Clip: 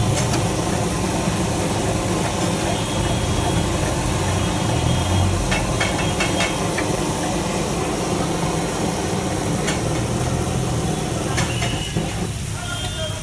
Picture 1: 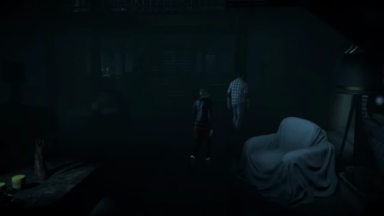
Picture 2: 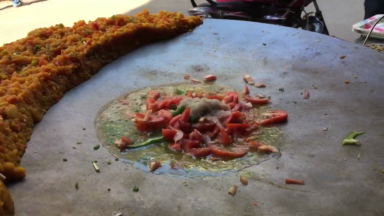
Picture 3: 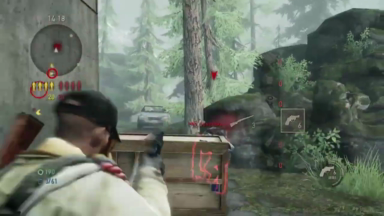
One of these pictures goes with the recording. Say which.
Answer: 2